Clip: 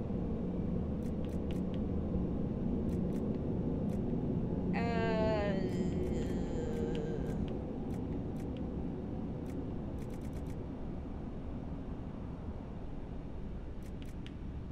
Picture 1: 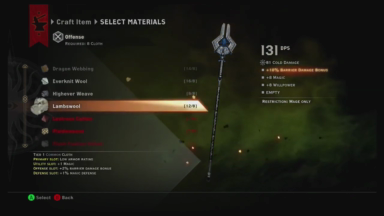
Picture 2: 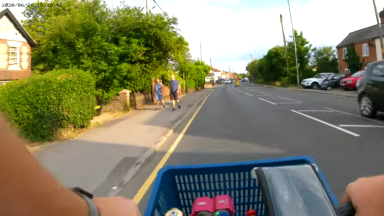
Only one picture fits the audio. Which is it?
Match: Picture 1